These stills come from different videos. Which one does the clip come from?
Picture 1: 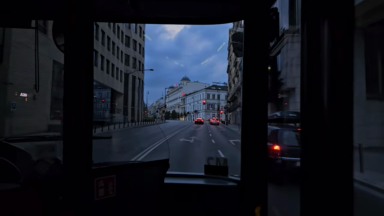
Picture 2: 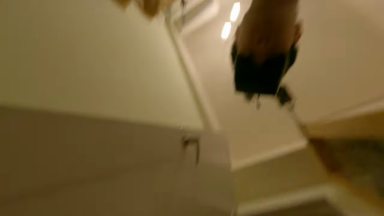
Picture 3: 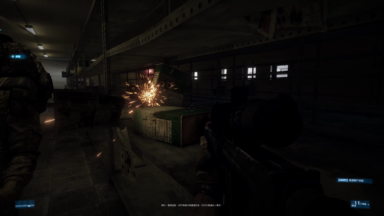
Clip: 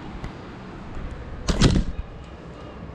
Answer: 2